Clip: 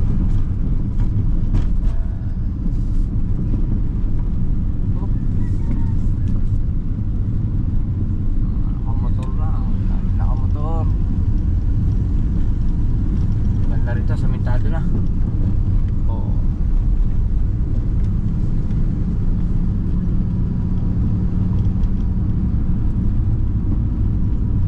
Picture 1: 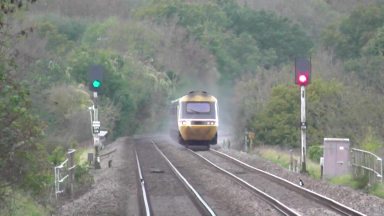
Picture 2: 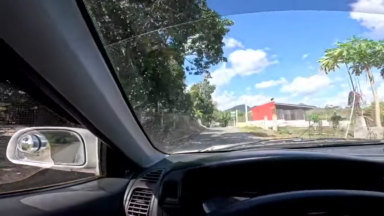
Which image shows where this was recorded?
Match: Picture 2